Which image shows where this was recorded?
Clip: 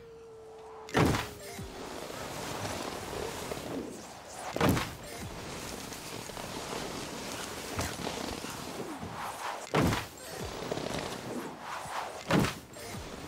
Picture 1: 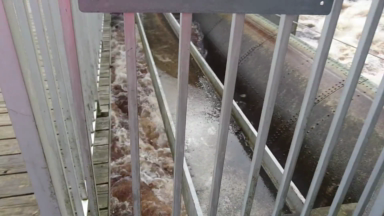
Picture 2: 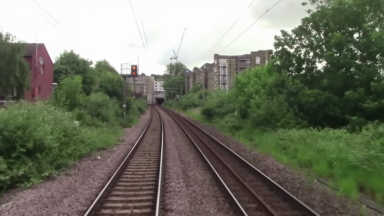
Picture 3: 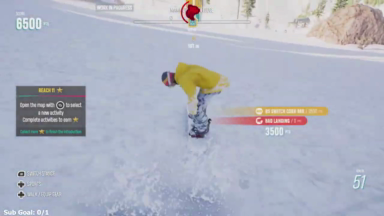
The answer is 3